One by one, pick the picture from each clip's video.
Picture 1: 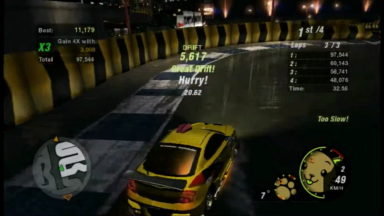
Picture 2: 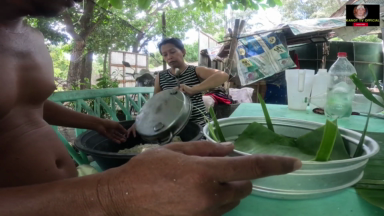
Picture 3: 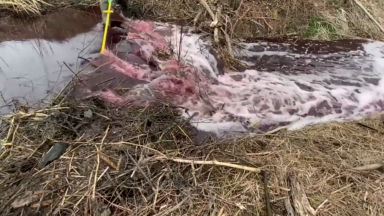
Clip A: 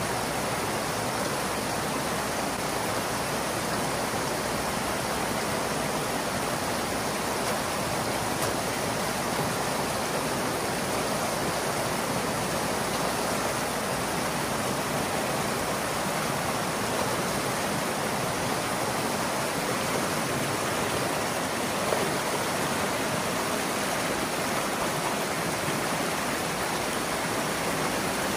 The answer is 3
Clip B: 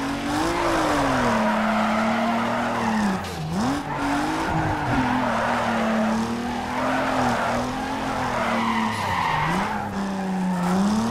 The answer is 1